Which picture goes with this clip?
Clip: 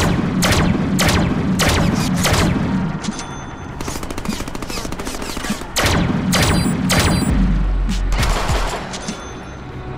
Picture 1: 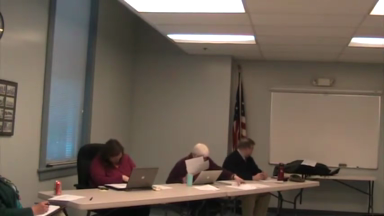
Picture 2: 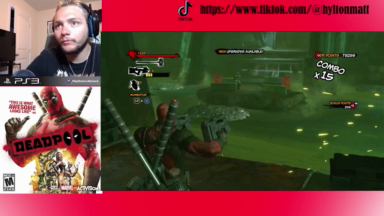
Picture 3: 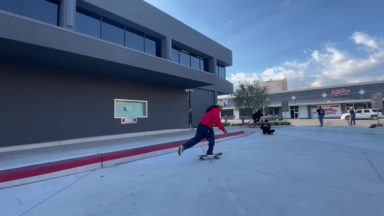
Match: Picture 2